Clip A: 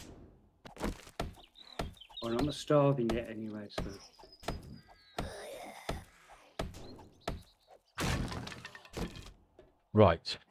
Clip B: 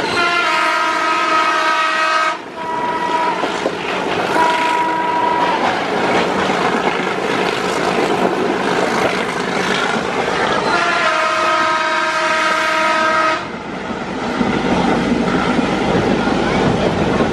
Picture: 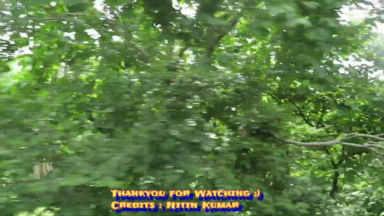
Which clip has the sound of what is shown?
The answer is B